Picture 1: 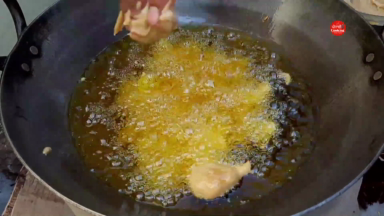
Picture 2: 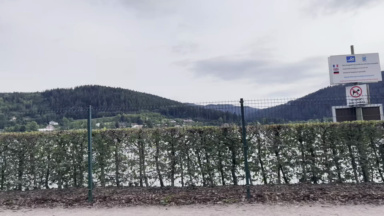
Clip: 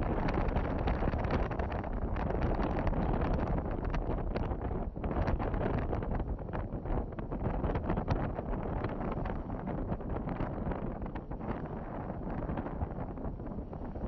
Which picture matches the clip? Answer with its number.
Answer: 2